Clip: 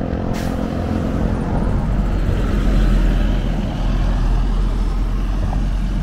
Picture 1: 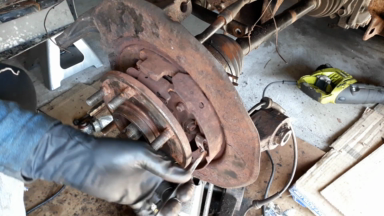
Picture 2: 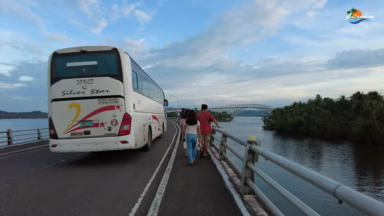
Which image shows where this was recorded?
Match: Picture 2